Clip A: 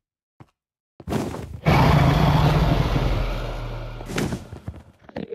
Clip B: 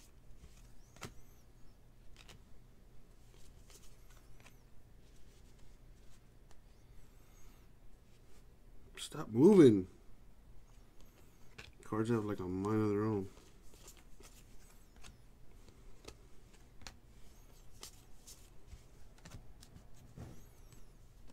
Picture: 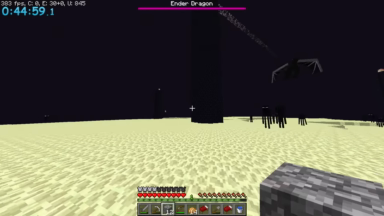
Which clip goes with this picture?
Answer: A